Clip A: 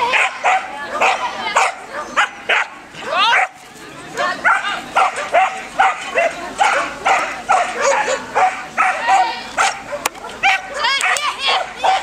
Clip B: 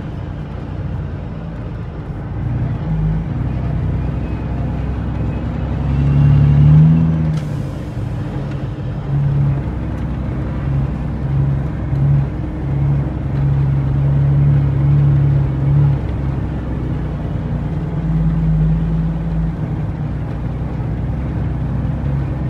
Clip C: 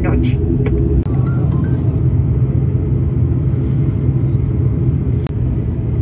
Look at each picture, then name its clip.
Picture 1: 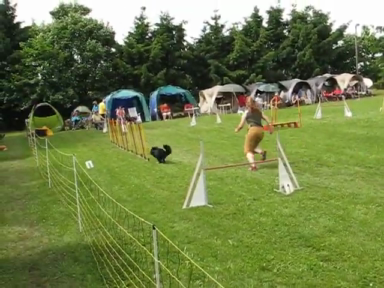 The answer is A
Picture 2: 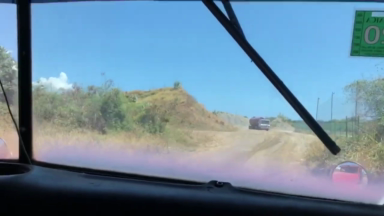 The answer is B